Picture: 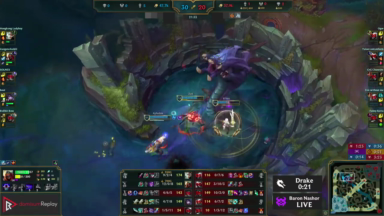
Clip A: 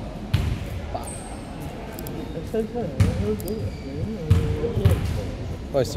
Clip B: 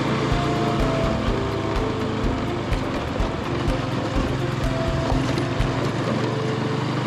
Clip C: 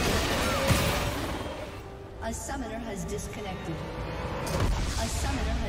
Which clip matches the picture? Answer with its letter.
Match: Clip C